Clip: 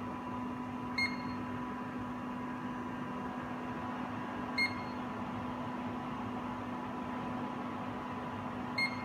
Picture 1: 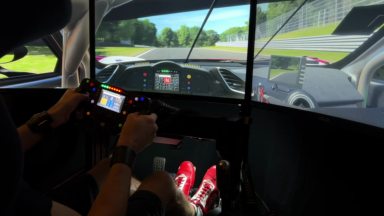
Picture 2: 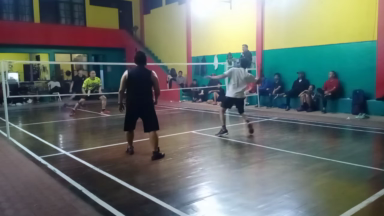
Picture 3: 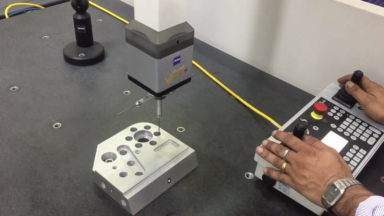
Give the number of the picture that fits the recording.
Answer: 3